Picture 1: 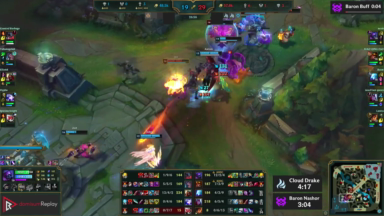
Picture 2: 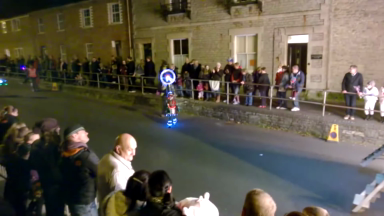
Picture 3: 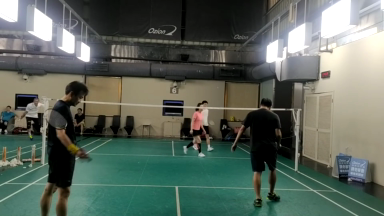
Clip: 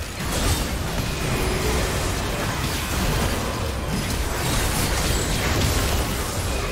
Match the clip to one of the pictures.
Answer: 1